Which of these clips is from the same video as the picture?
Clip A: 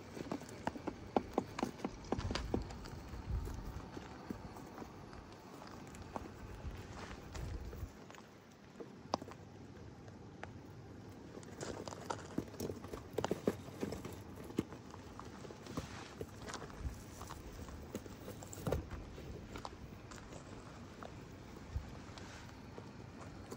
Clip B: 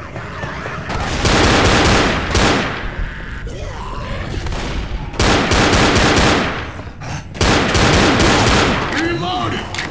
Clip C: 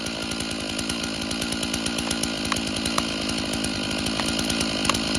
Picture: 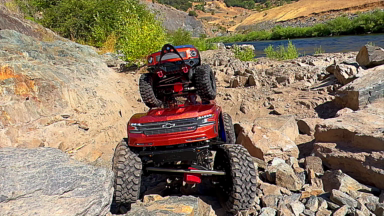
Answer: A